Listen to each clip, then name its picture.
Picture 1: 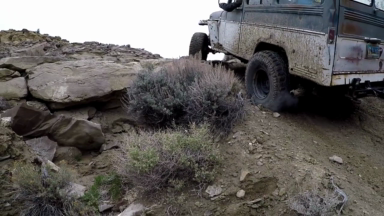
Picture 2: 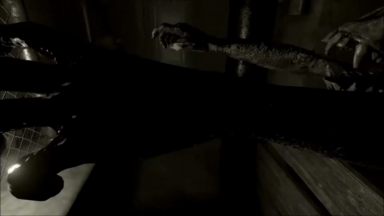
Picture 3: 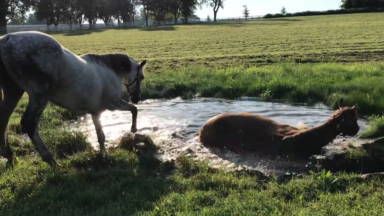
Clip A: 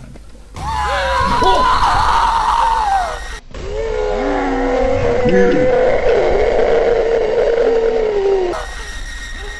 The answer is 2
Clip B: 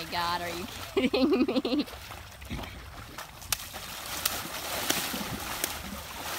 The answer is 3